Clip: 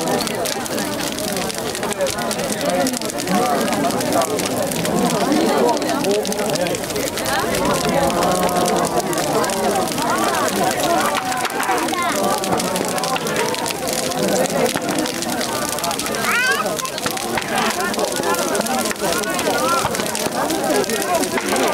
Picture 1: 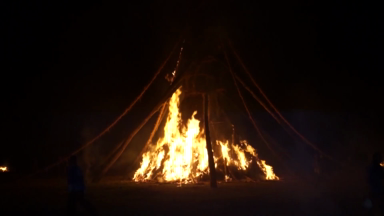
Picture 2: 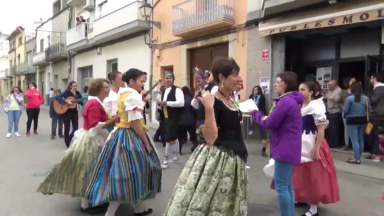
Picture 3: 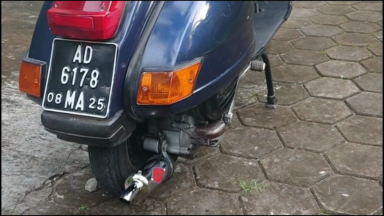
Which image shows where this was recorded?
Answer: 1